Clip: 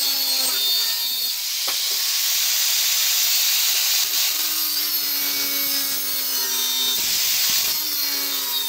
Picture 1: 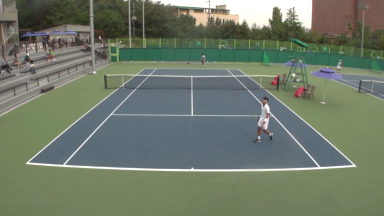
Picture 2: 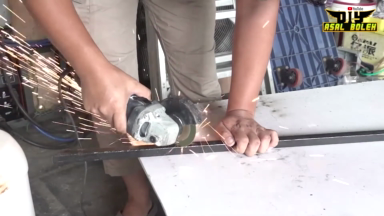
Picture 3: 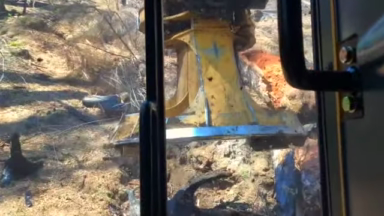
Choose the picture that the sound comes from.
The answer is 2